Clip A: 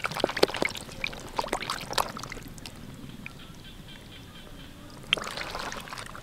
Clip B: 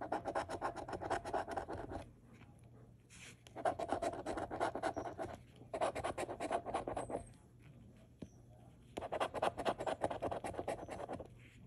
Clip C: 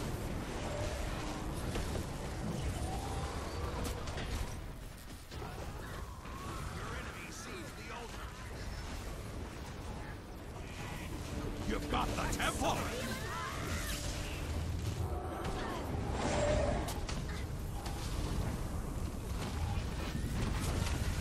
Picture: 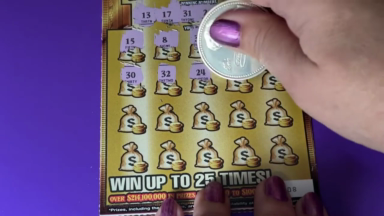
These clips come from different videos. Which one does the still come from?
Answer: B